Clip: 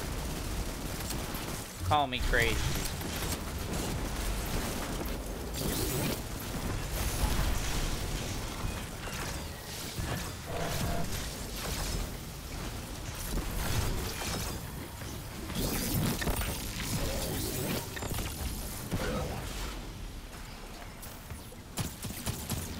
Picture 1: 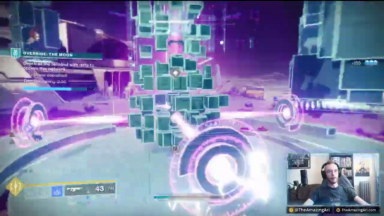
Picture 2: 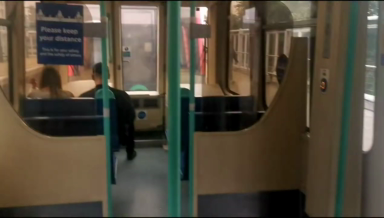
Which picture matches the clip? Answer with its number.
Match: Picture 1